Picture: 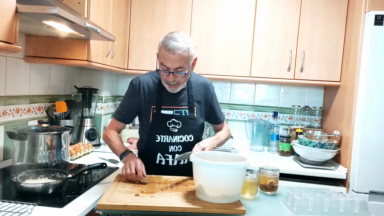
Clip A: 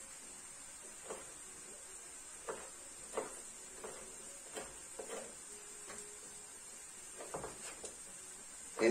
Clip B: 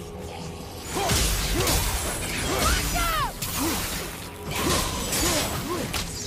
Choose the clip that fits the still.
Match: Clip A